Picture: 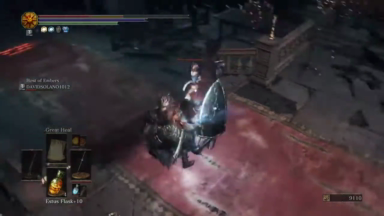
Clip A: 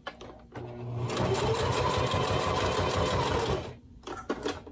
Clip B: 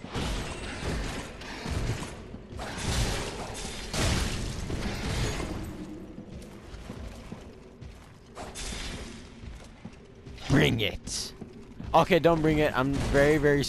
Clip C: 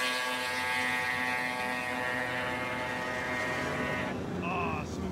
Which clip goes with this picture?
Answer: B